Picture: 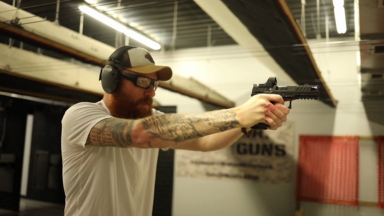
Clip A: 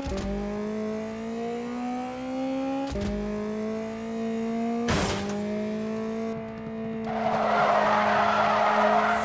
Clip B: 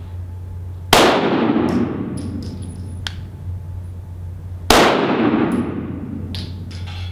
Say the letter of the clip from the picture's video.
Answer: B